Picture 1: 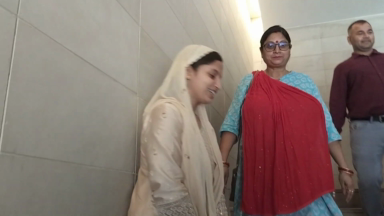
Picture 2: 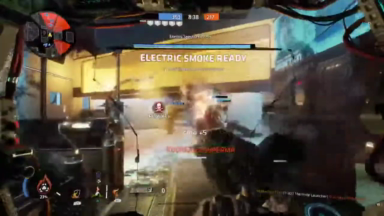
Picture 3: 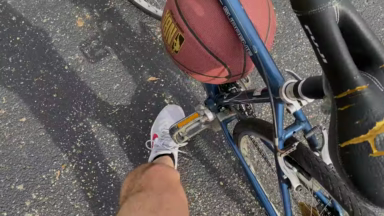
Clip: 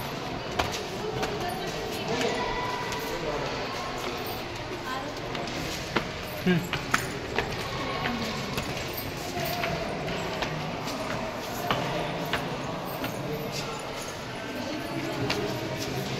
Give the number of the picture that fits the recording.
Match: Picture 1